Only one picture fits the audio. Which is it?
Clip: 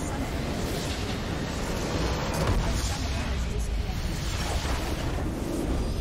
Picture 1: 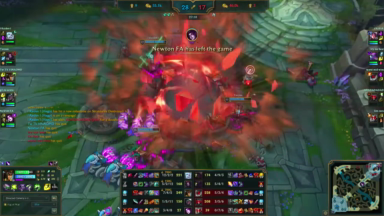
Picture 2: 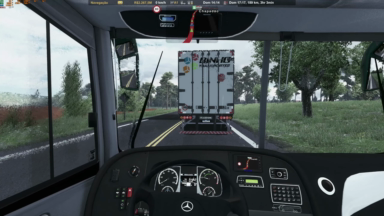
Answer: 1